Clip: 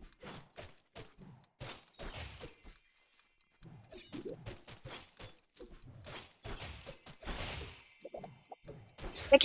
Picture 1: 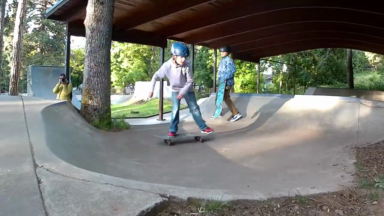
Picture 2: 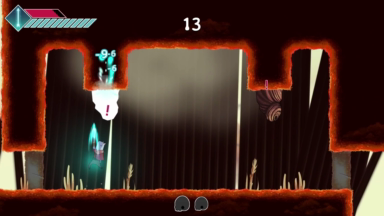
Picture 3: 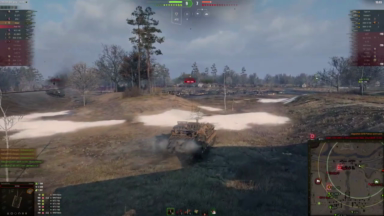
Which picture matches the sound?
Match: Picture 2